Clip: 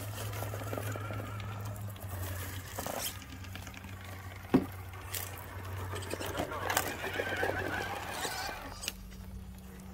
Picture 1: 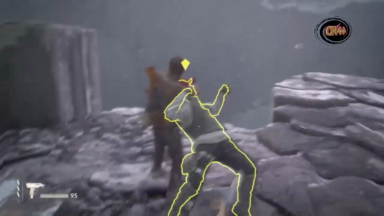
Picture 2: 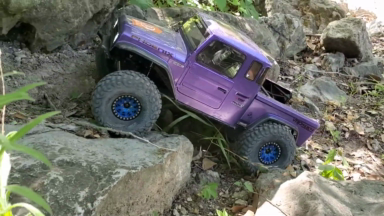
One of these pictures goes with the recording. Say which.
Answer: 2